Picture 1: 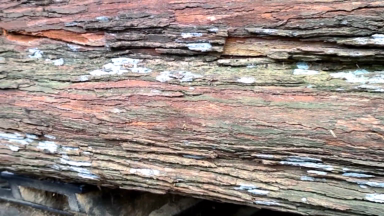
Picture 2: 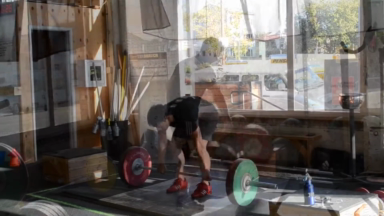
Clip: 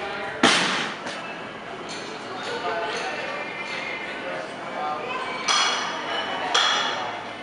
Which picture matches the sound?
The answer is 2